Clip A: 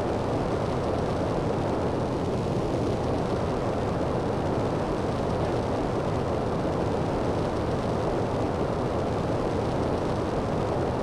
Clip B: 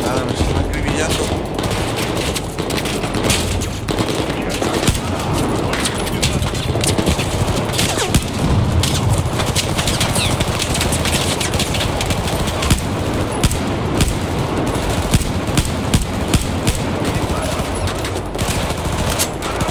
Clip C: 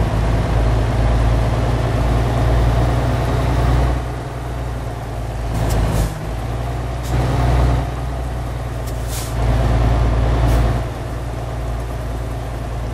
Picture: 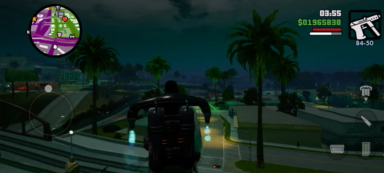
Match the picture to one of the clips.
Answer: A